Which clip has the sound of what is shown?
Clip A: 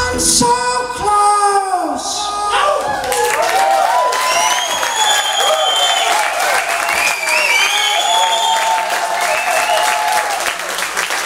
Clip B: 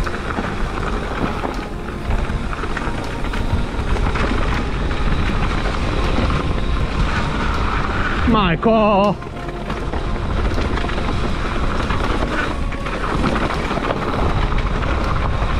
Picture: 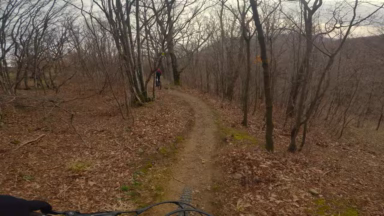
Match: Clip B